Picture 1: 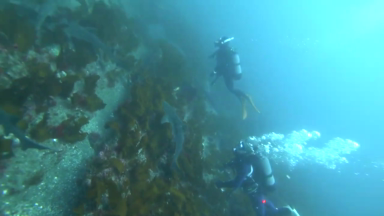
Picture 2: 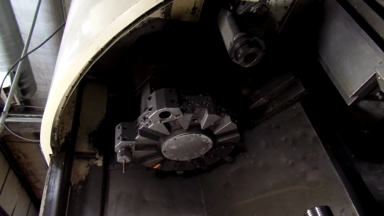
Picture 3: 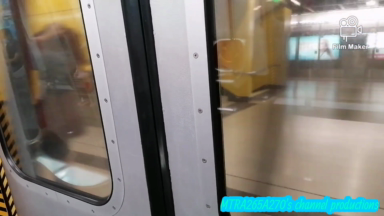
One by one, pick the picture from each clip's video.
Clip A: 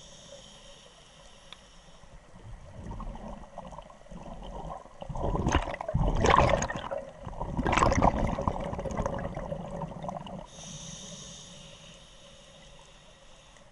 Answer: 1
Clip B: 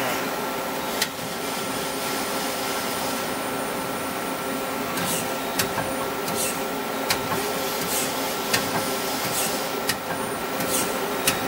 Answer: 2